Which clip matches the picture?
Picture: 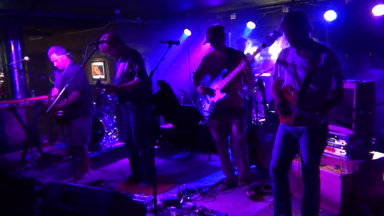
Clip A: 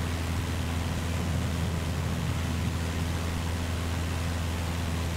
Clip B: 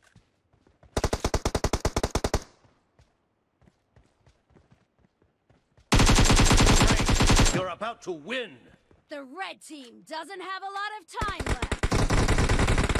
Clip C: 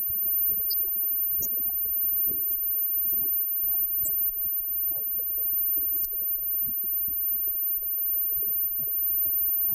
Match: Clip C